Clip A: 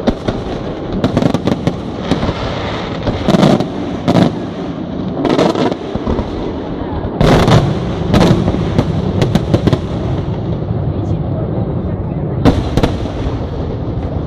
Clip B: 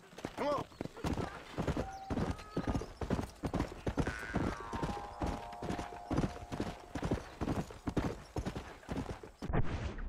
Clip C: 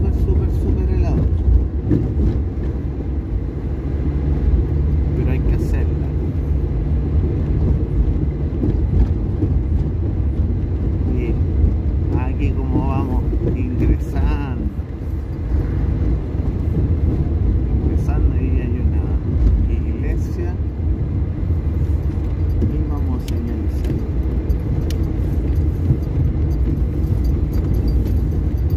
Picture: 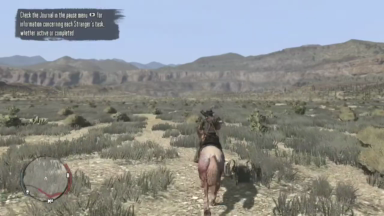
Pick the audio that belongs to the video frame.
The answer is B